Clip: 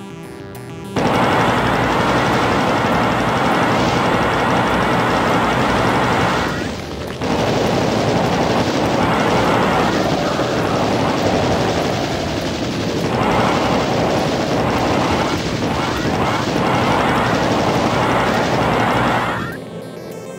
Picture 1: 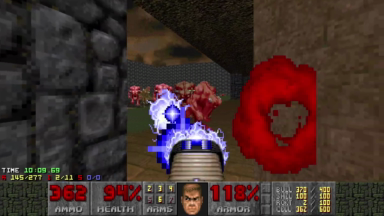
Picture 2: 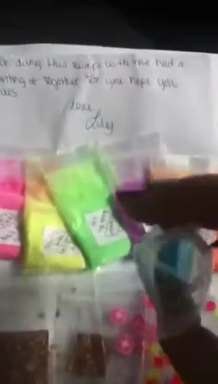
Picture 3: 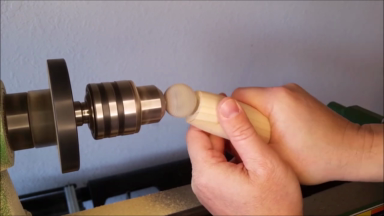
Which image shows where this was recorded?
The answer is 1